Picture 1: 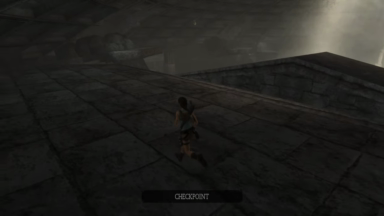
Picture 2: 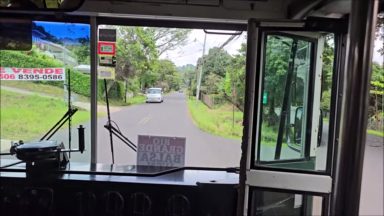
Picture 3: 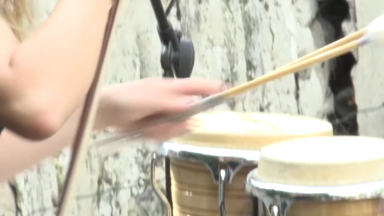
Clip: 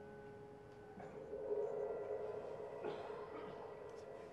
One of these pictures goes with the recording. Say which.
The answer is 3